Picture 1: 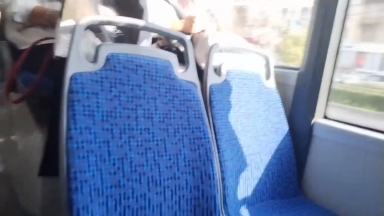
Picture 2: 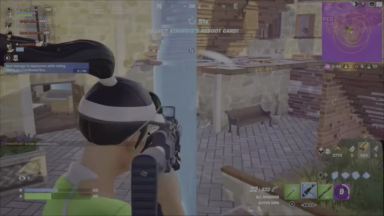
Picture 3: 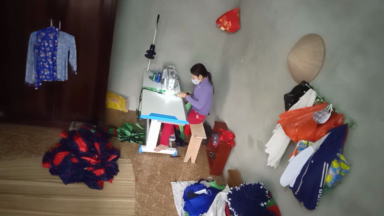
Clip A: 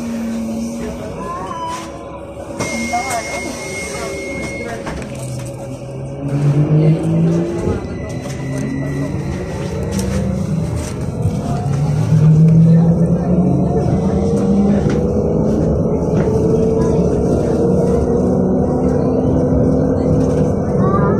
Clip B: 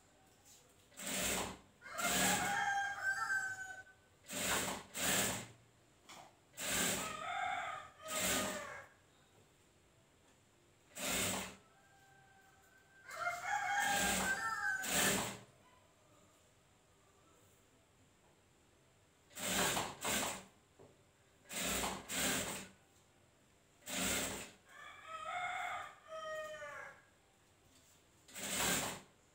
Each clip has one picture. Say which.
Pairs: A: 1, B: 3